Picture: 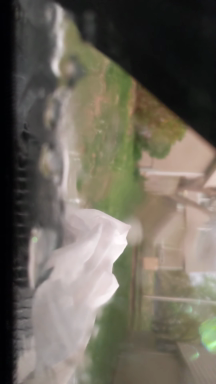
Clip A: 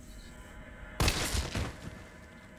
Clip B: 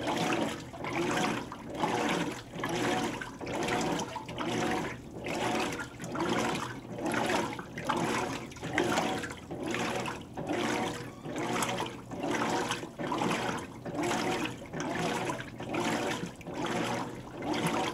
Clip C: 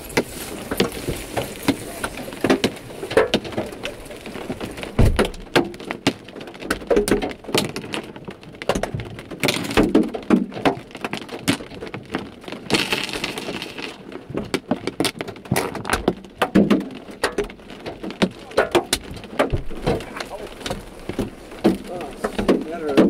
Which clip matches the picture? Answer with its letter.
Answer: C